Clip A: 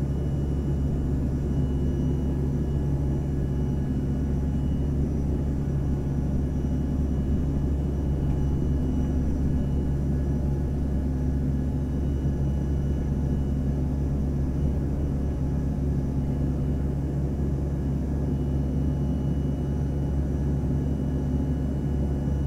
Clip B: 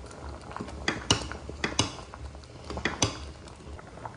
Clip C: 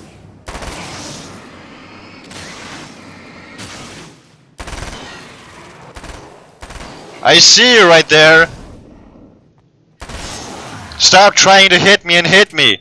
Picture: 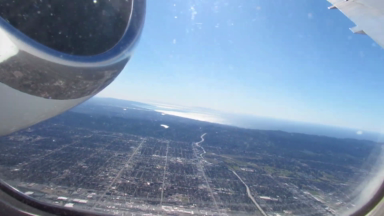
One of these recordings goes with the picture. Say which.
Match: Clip A